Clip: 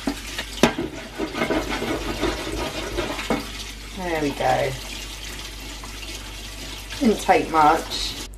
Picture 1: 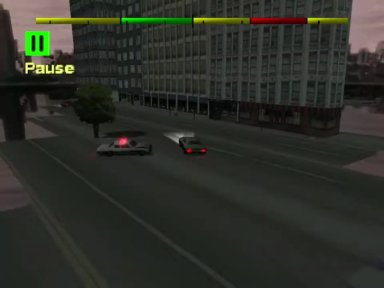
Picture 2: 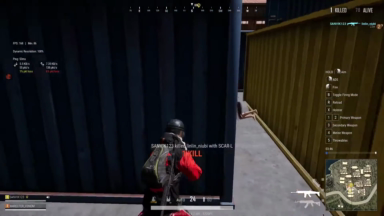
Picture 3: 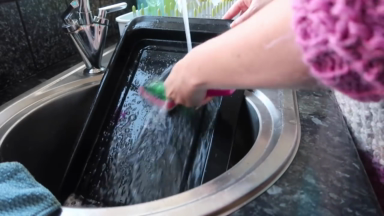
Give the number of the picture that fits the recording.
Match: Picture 3